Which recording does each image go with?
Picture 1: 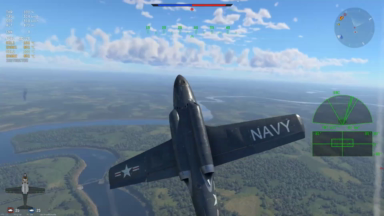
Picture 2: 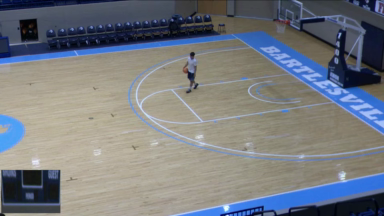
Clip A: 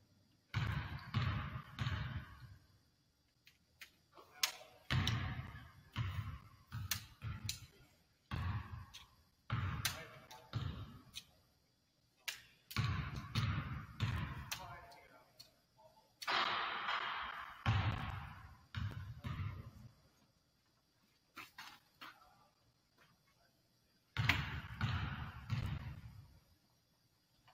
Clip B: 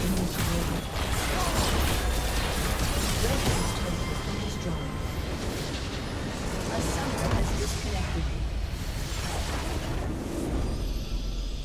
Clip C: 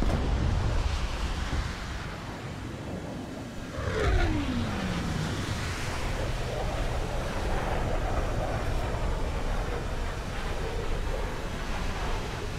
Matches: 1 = C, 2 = A